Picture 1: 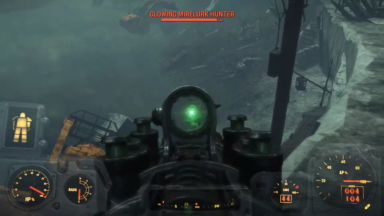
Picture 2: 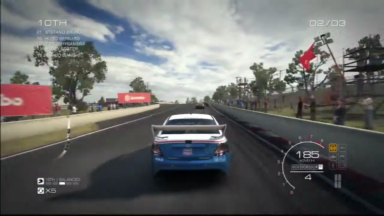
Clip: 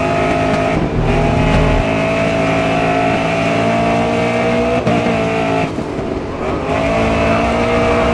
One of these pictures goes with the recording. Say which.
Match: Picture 2